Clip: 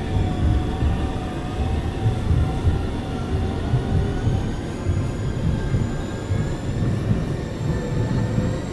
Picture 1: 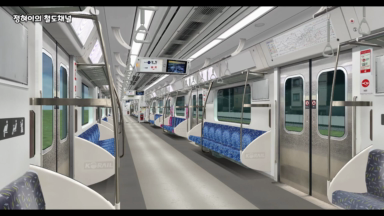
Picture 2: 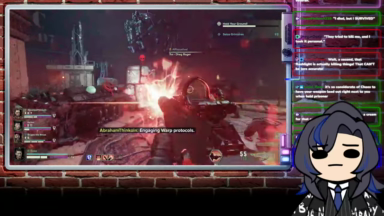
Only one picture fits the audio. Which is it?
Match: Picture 1